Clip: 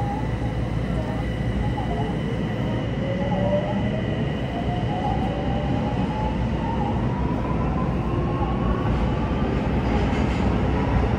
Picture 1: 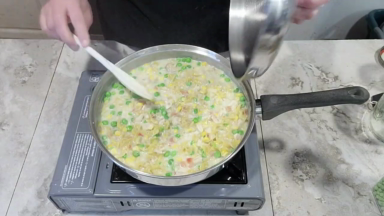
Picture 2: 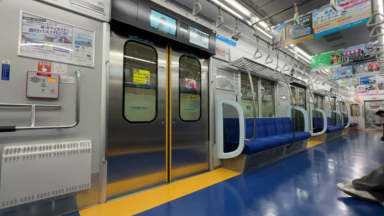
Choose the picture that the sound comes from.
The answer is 2